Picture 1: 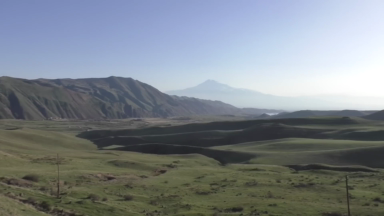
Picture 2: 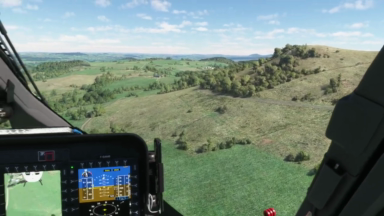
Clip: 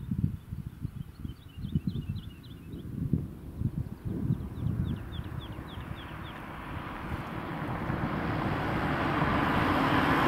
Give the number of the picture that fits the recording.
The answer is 1